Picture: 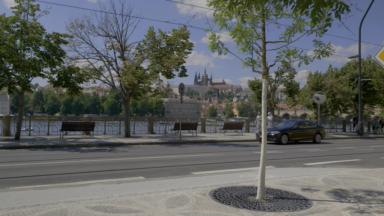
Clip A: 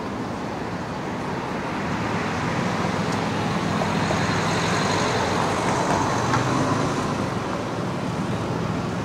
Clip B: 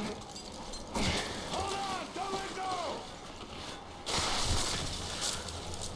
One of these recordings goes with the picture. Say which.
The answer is A